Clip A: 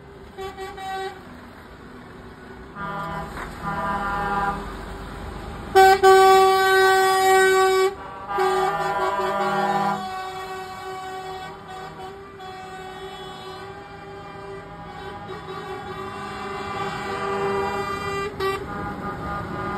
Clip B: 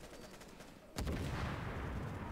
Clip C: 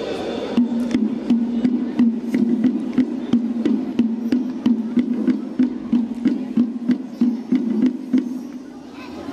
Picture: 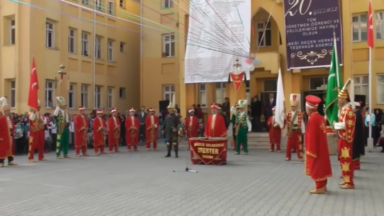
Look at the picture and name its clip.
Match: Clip C